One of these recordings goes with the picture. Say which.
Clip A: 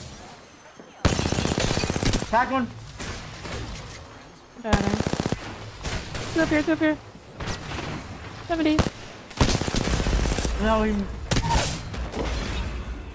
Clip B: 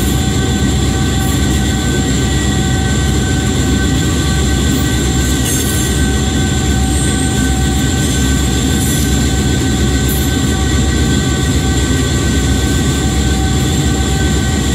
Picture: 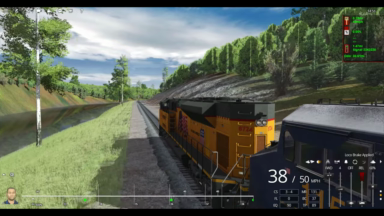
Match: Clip B